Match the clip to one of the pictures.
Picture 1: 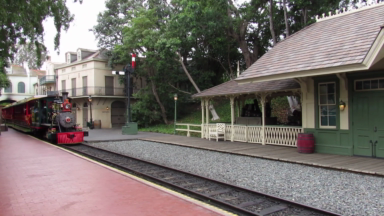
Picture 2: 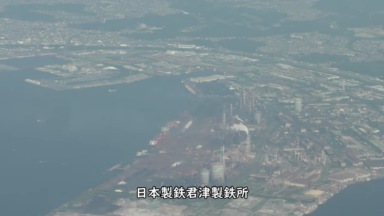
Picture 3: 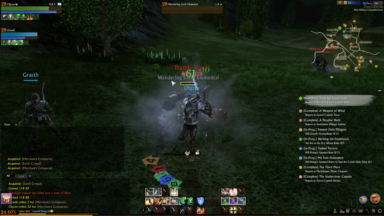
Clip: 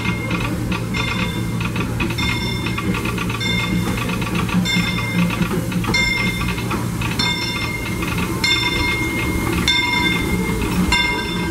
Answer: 1